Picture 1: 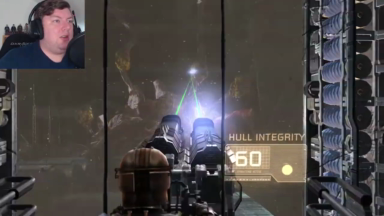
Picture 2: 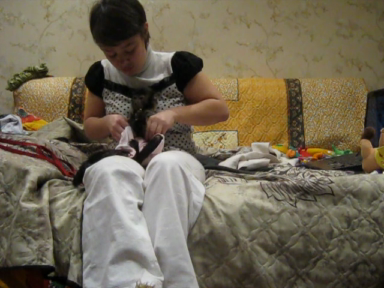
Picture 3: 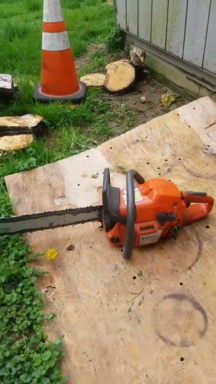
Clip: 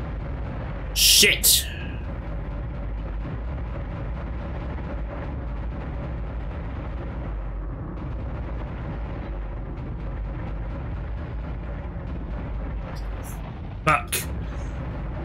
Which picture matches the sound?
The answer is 1